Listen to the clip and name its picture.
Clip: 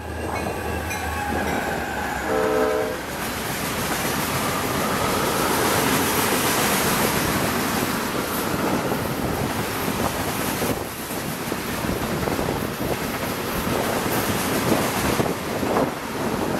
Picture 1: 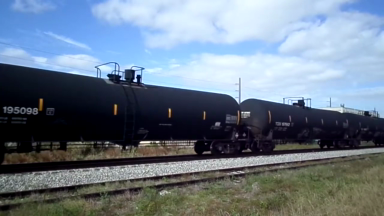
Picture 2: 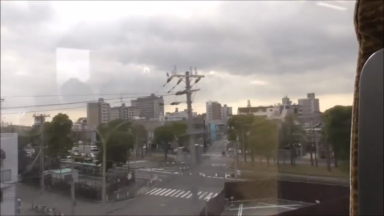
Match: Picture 1